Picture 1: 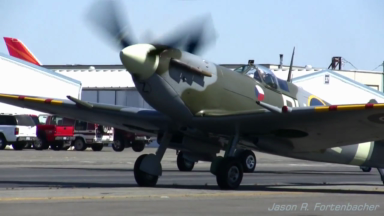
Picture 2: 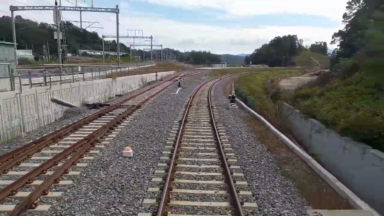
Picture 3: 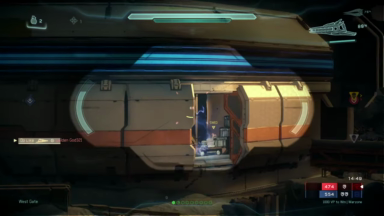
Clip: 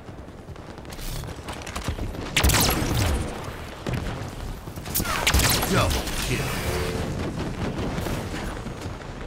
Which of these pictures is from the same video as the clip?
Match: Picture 3